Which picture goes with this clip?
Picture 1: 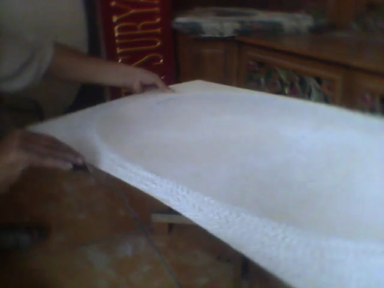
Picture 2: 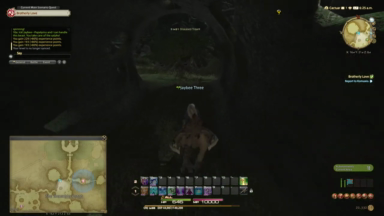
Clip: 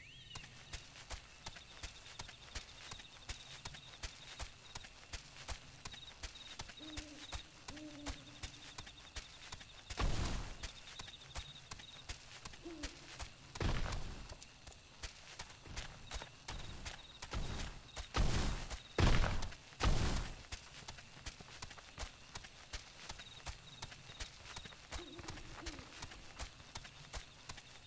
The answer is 2